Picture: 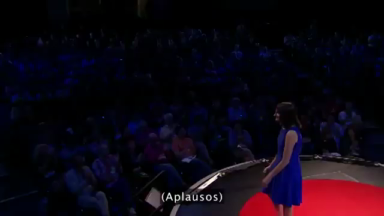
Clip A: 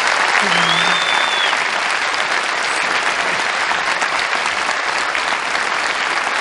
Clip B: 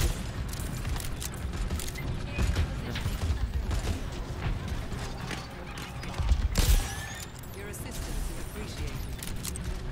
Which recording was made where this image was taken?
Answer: A